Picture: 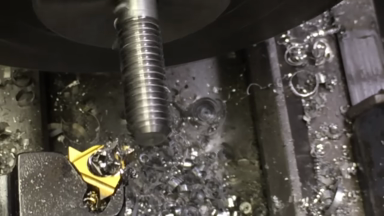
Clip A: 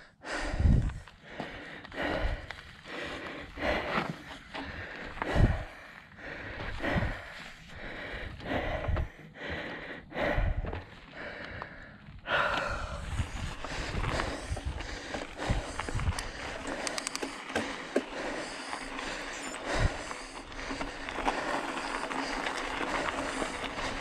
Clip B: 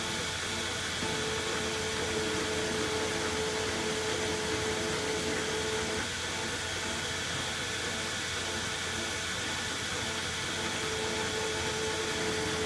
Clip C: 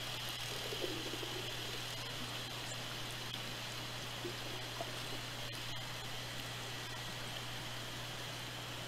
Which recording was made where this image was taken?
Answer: B